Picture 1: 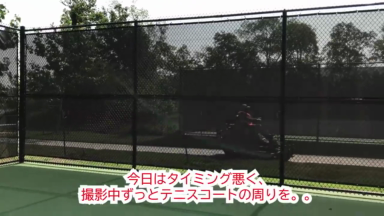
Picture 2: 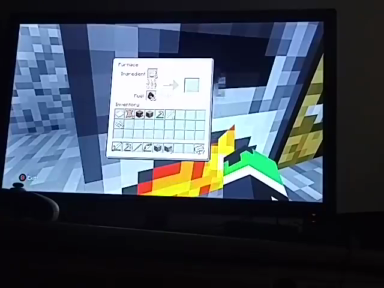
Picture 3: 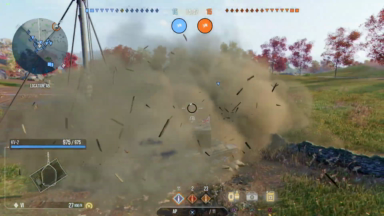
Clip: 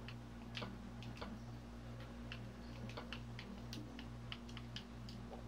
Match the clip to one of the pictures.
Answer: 2